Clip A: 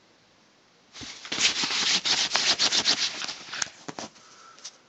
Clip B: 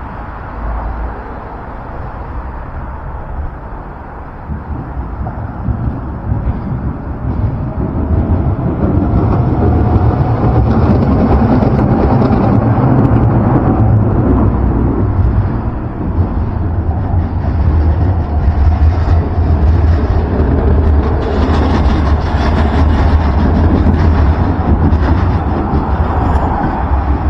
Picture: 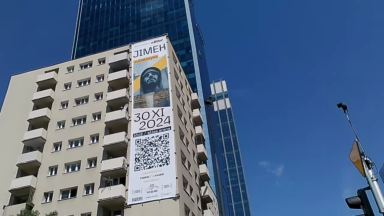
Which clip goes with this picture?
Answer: B